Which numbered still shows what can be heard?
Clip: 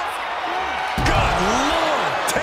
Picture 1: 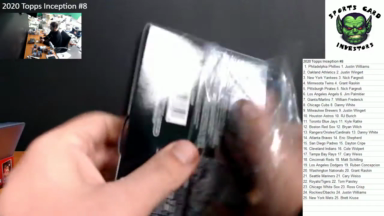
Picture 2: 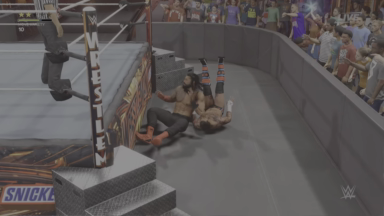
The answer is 2